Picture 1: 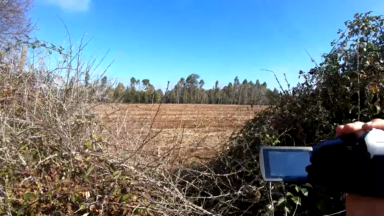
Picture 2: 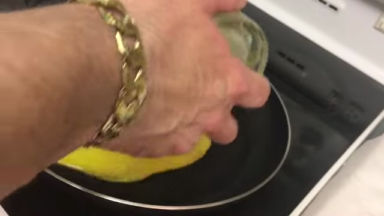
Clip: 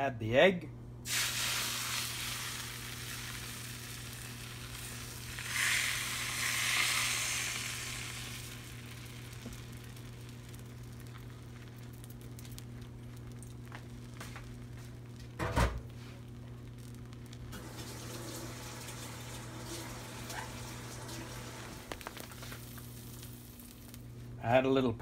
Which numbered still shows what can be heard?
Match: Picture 2